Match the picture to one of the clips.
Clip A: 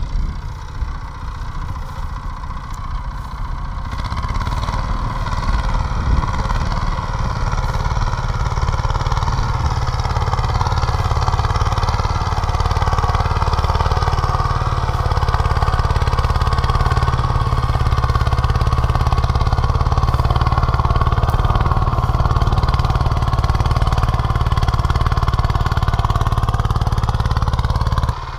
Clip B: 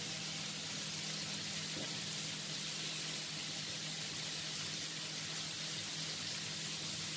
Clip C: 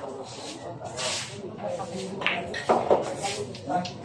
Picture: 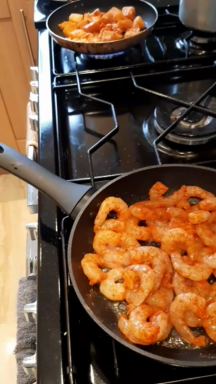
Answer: B